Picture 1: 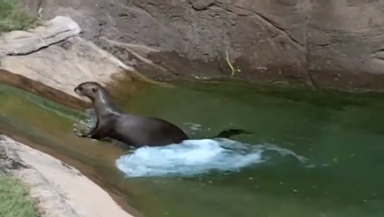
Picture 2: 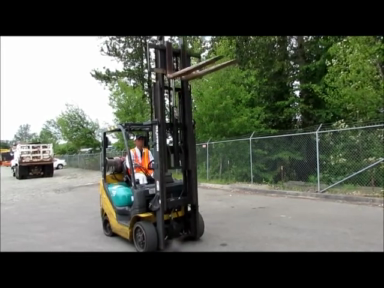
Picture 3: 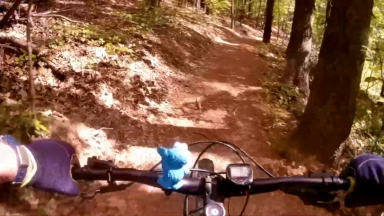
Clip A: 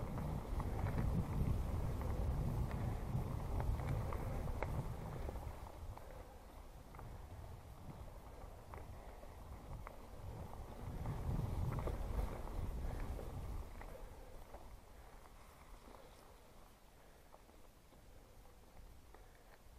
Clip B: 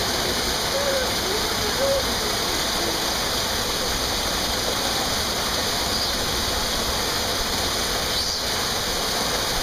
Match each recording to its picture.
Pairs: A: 3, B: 1